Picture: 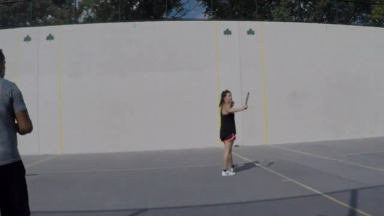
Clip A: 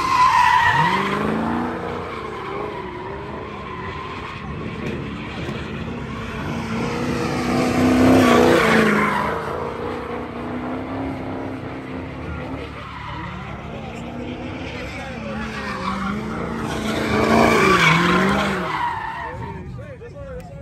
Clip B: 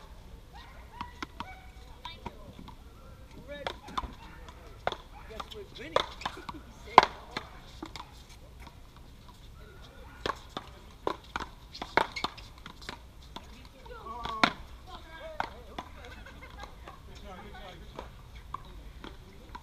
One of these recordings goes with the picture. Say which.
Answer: B